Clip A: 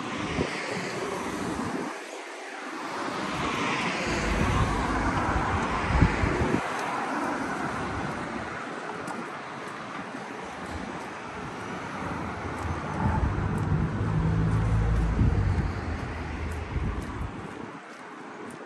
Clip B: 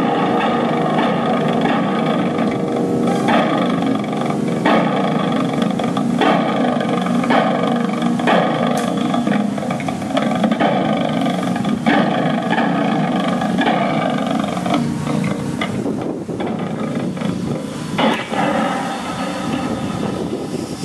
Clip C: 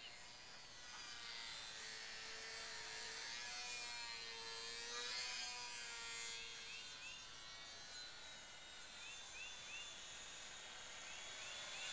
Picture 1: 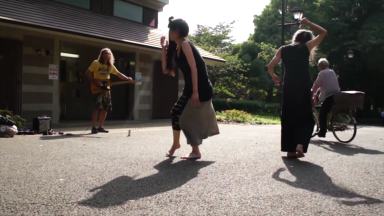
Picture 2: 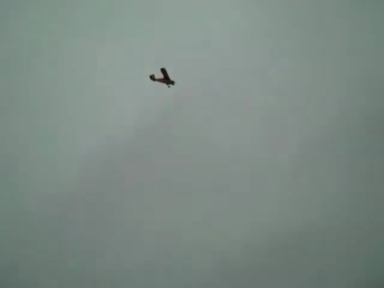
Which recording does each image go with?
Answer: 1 B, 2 C